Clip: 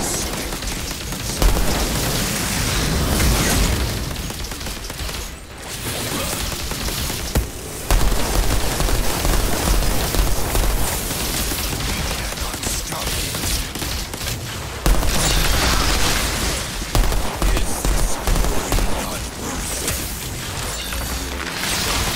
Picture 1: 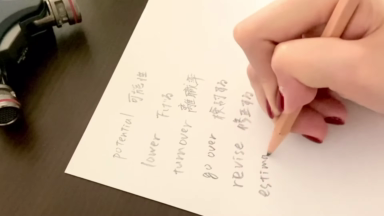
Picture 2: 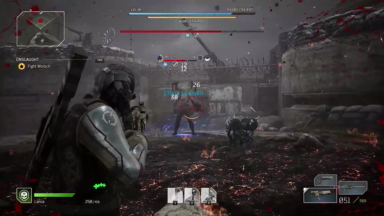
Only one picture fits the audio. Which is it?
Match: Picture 2